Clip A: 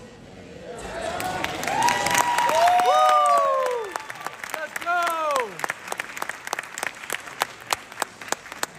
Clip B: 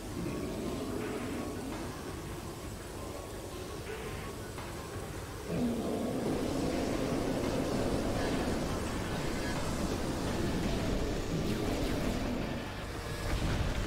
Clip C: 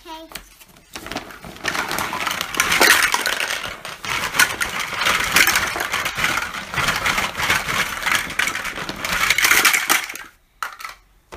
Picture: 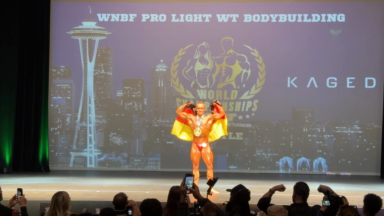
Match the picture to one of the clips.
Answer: A